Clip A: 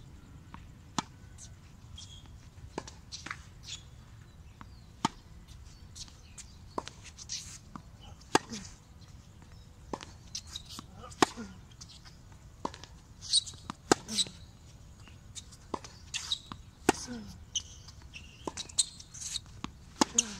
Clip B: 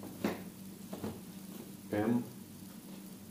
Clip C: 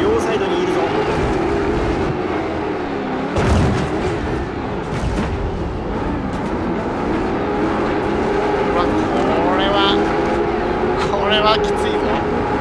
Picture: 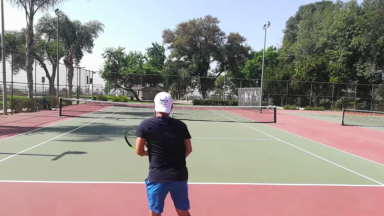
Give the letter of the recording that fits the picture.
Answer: A